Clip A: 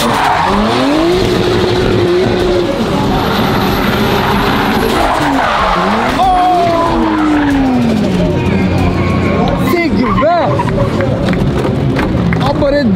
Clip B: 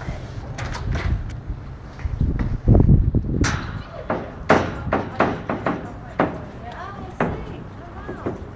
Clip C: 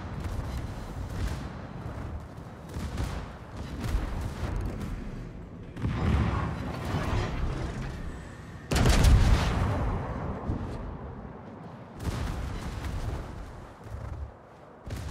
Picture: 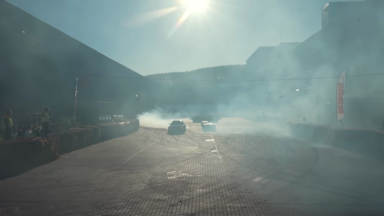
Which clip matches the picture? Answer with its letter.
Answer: A